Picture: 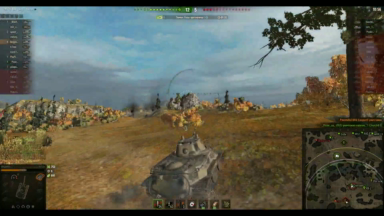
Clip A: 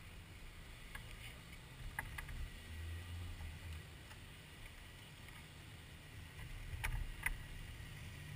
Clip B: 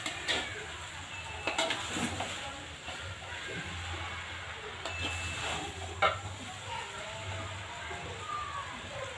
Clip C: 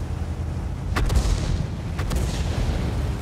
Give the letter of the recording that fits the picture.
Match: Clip C